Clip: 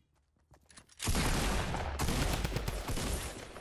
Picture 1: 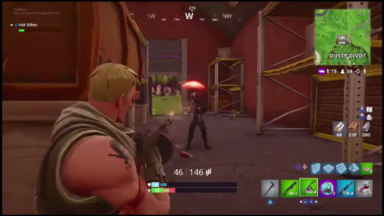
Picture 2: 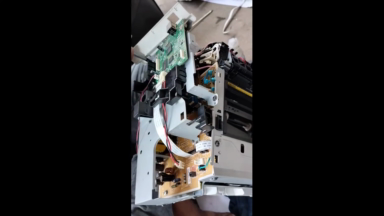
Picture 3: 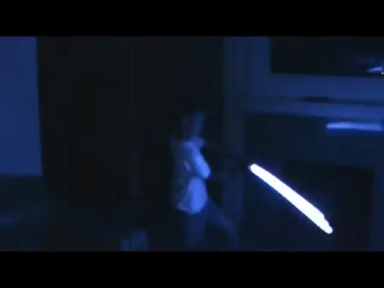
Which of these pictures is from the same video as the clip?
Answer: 1